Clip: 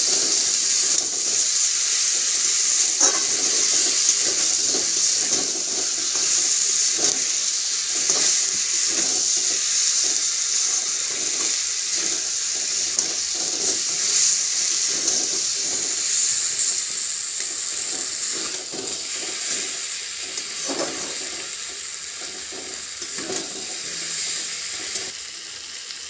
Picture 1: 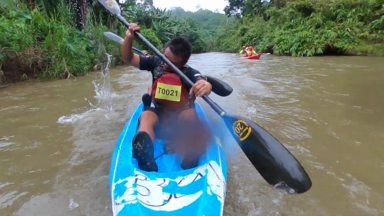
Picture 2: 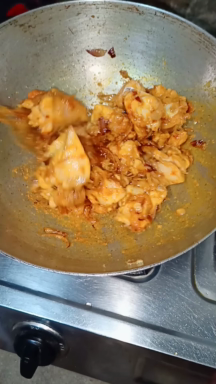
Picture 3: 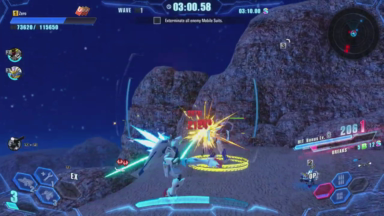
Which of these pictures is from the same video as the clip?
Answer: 2